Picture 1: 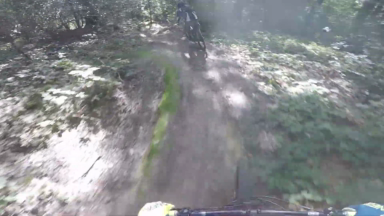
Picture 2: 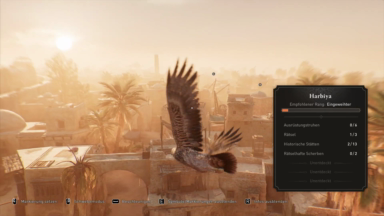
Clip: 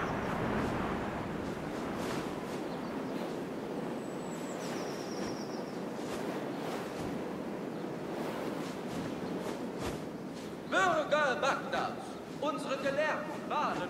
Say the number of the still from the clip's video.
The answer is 2